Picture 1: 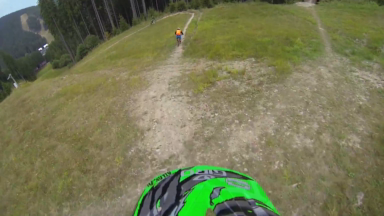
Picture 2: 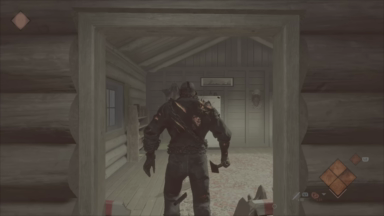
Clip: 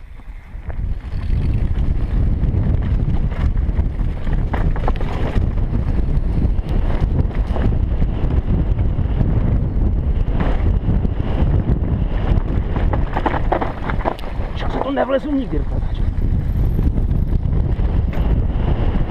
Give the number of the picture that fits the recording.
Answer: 1